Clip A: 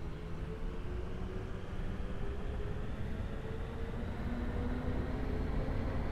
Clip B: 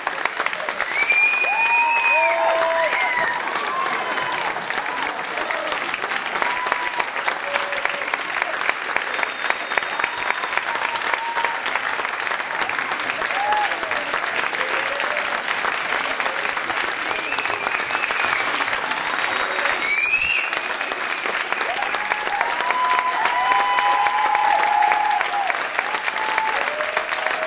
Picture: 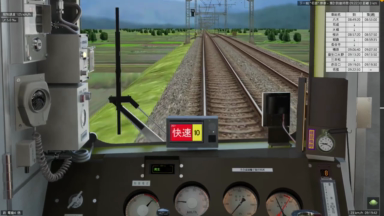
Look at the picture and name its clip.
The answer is A